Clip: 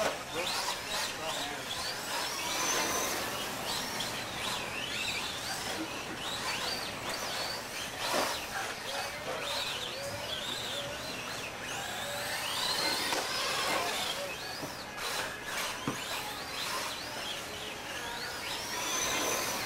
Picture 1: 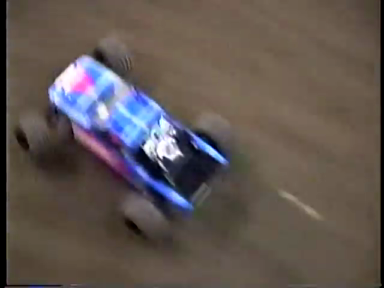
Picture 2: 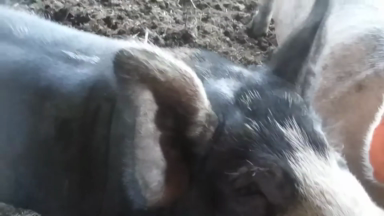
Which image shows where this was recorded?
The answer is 1